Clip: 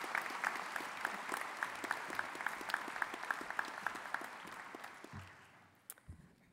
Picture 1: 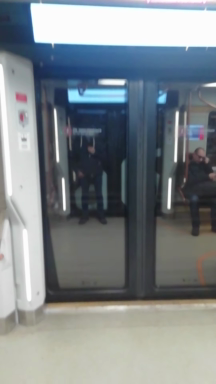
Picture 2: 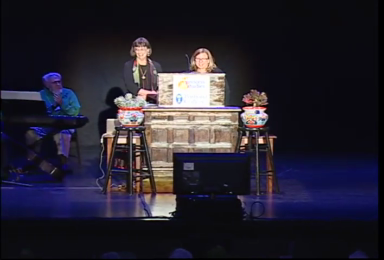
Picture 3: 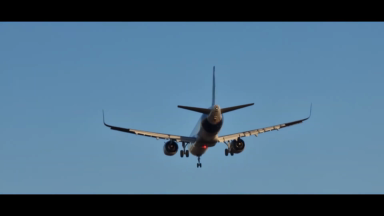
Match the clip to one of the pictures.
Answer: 2